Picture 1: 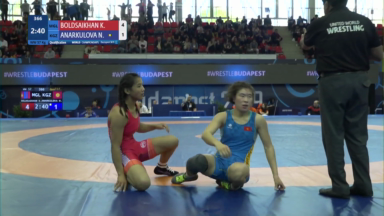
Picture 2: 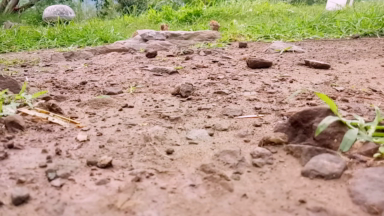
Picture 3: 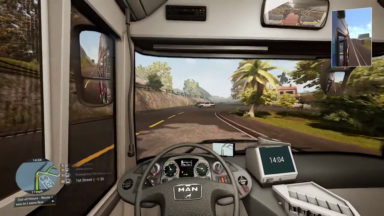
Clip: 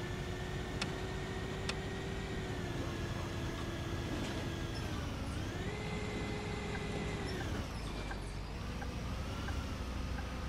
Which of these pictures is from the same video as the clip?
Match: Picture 3